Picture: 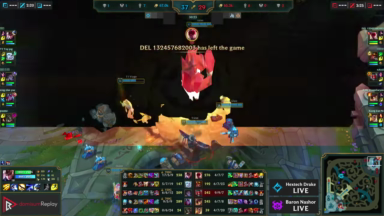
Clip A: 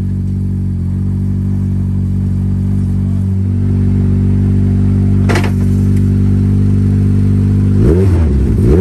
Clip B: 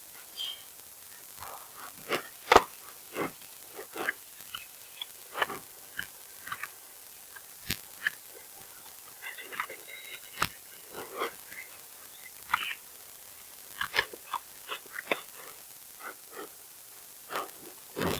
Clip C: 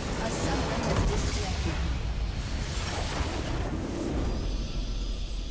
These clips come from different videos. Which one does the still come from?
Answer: C